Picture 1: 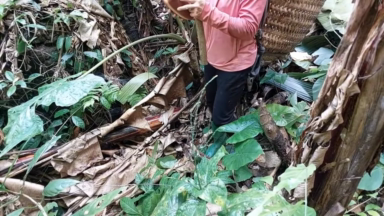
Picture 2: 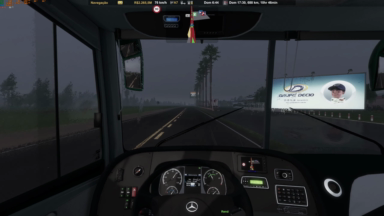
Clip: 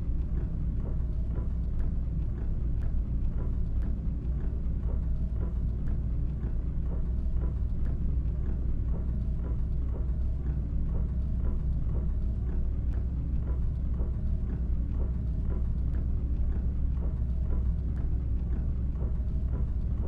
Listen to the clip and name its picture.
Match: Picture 2